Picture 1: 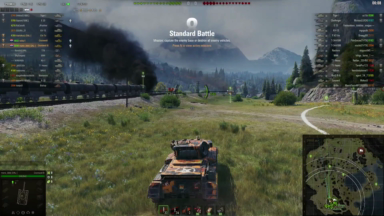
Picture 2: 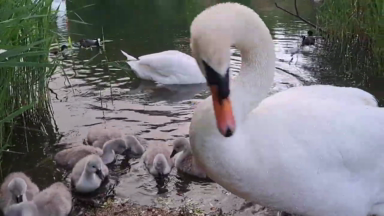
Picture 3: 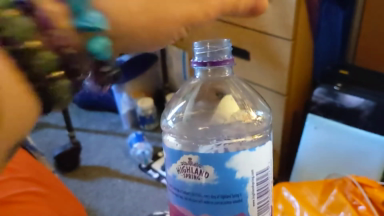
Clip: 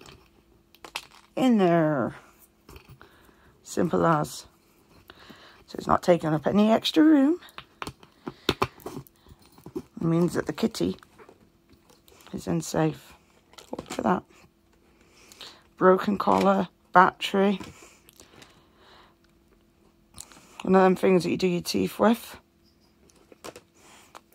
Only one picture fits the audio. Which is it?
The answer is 3